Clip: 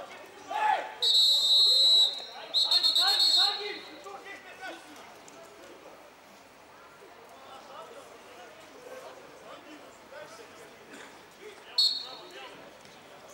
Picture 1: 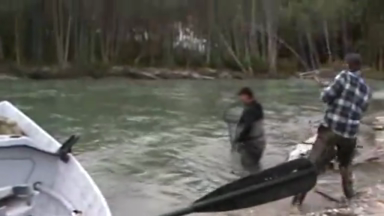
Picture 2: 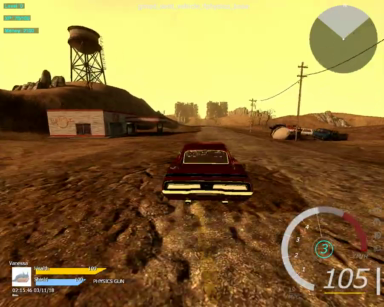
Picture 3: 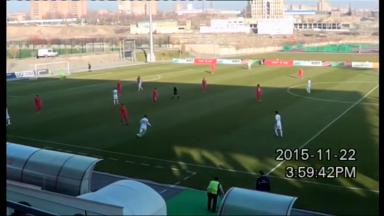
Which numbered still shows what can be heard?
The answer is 3